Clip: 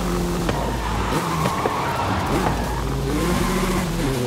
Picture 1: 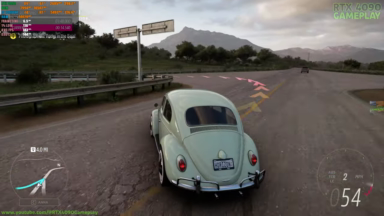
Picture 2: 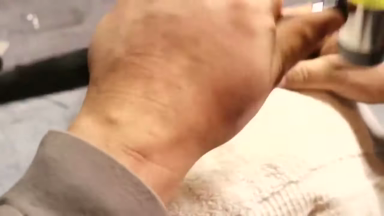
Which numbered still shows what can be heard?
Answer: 1